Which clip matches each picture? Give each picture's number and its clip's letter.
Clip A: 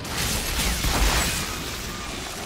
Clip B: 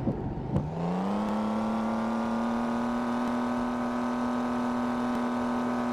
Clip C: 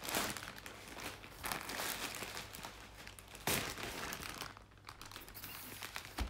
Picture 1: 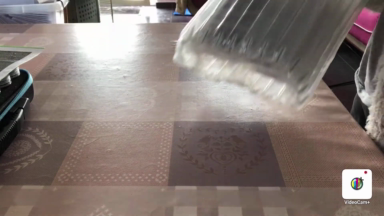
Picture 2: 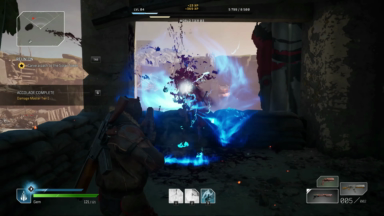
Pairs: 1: C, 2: A